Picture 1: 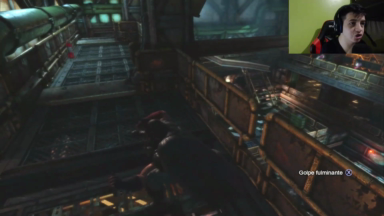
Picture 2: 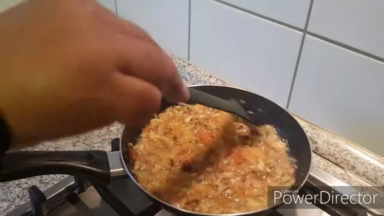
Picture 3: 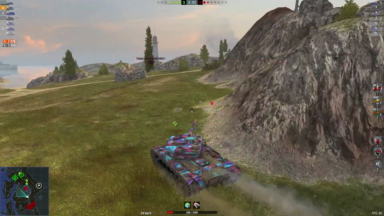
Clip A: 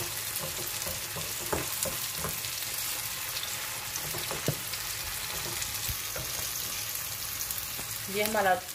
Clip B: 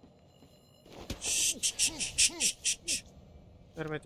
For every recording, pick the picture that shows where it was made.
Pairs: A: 2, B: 1